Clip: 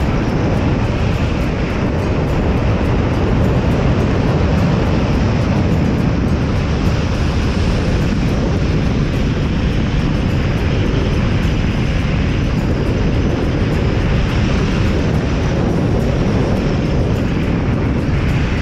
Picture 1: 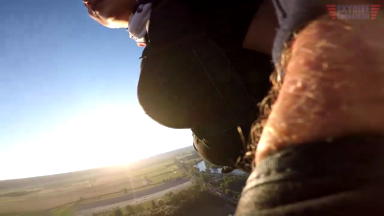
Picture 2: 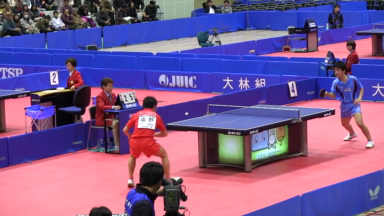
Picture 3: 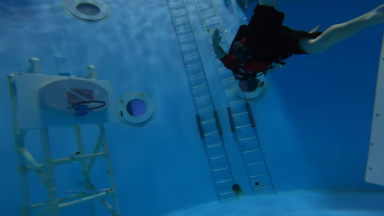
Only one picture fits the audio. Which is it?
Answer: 1